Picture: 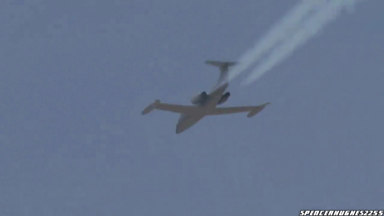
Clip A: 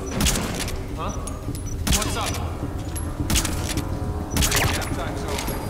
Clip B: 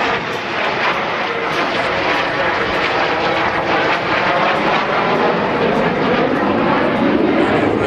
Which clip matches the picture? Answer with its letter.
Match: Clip B